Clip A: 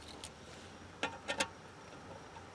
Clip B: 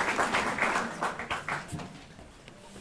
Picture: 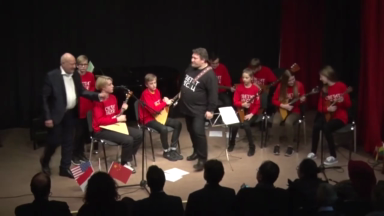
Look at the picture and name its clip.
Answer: B